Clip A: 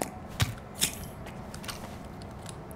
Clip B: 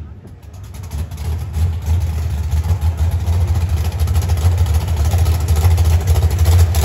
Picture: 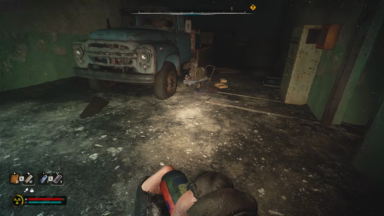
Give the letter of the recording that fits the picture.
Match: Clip A